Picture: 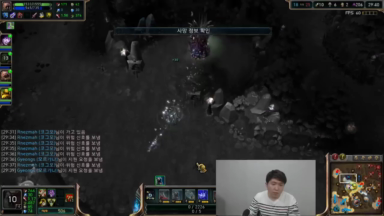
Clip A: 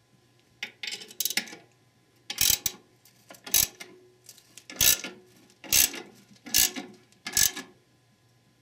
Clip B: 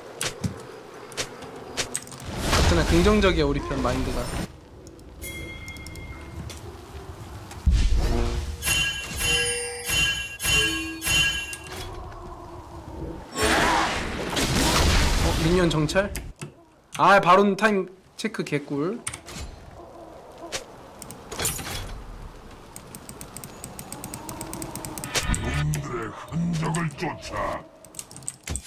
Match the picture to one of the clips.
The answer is B